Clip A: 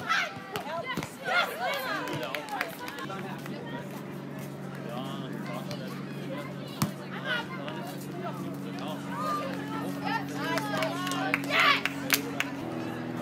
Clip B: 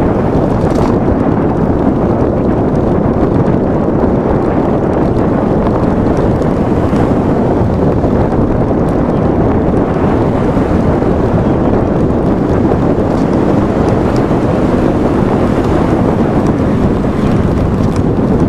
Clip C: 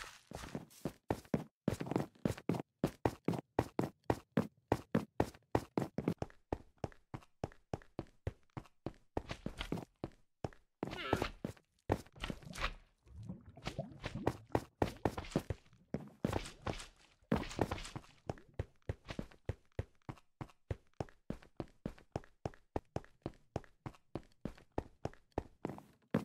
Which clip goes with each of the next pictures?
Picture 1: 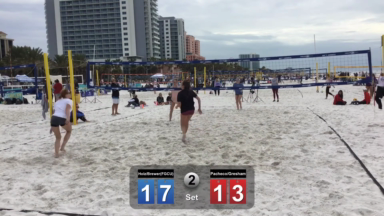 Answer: A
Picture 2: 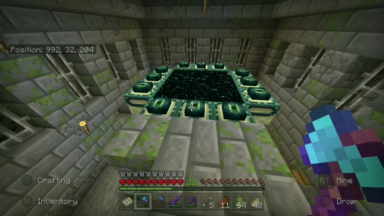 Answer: C